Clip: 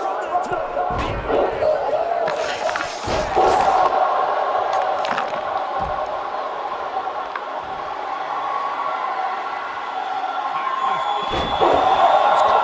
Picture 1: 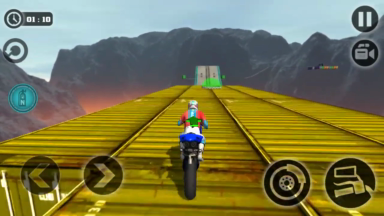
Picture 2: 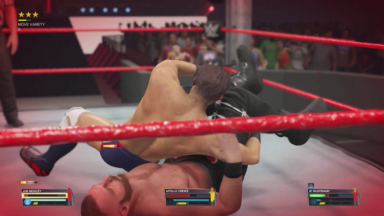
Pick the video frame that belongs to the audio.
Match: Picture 2